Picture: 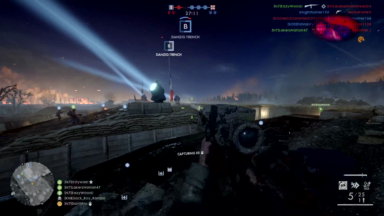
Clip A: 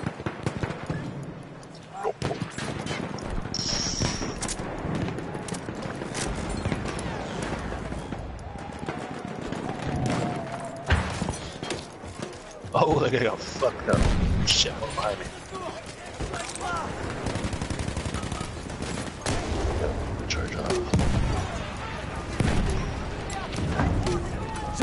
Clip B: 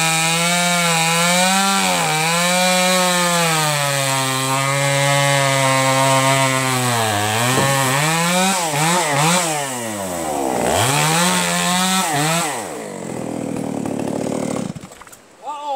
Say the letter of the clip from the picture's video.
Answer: A